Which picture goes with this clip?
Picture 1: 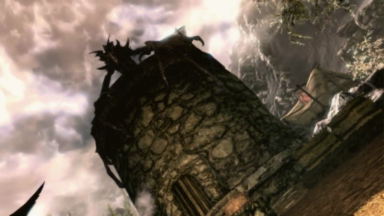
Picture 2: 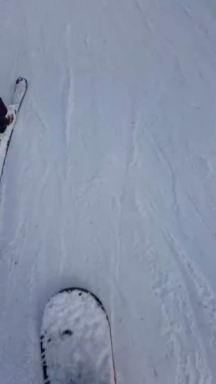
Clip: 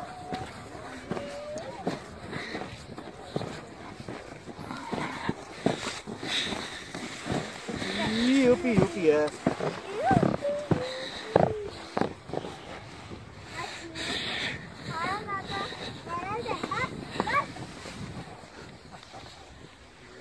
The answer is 2